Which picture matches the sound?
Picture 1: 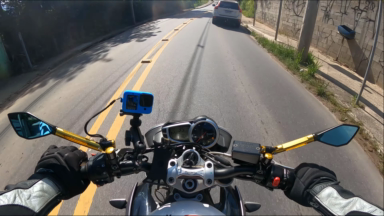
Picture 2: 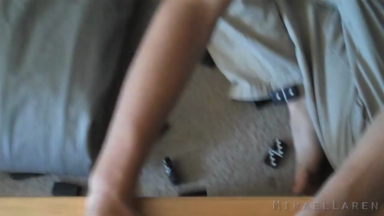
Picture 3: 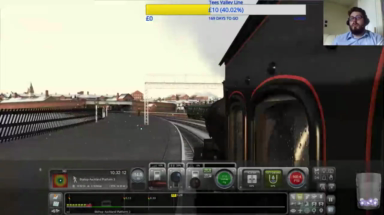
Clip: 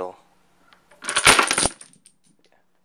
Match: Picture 2